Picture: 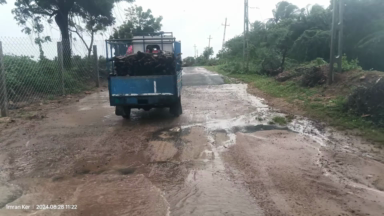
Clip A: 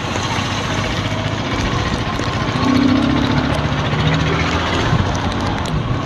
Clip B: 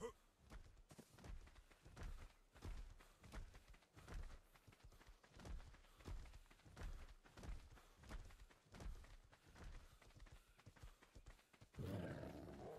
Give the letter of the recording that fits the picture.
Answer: A